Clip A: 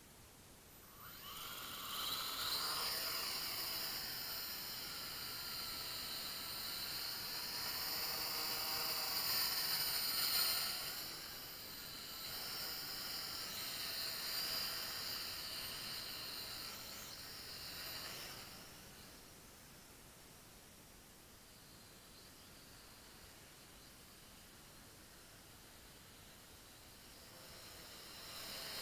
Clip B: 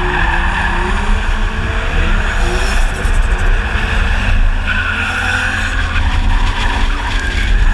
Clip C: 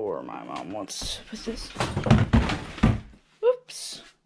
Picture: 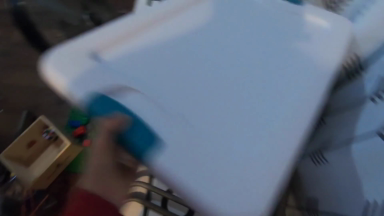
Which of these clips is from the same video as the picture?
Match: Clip C